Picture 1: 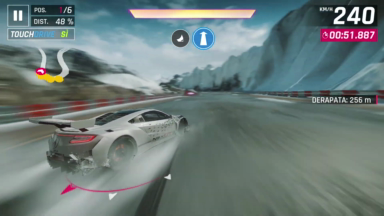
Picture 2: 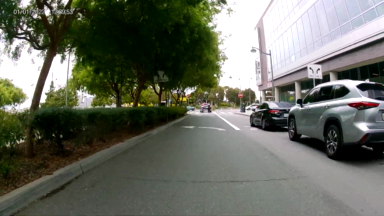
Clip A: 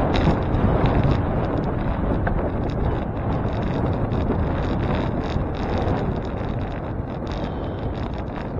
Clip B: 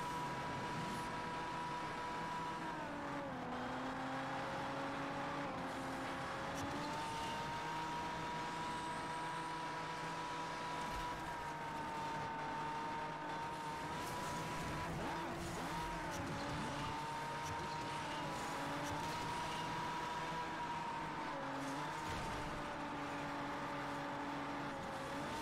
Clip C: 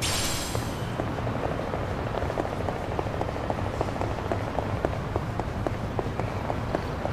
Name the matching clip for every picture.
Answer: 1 B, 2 A